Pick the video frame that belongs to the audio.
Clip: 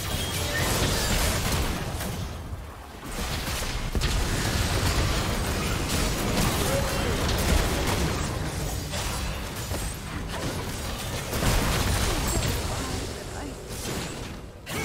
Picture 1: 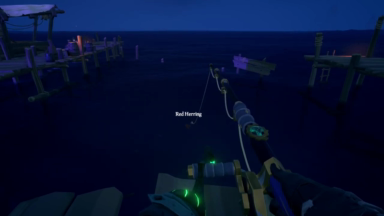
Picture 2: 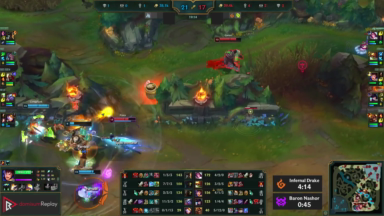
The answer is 2